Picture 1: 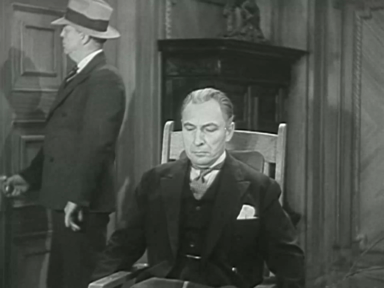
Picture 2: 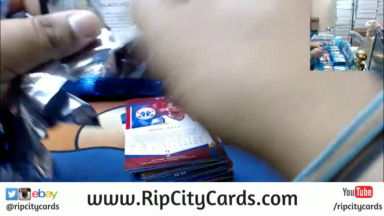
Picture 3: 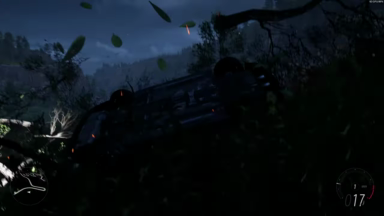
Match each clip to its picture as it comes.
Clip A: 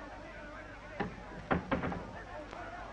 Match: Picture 1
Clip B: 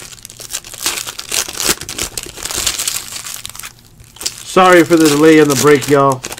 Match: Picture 2